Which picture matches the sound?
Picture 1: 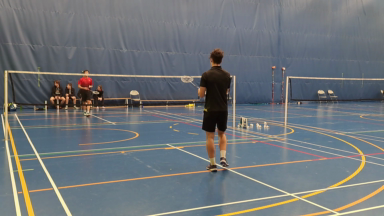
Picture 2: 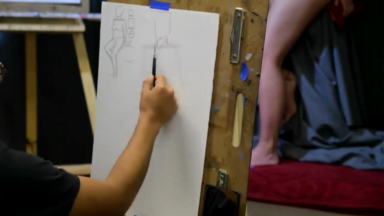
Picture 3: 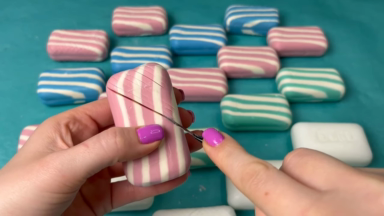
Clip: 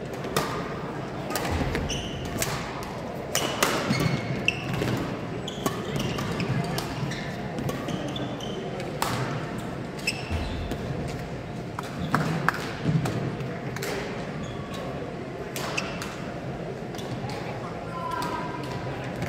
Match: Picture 1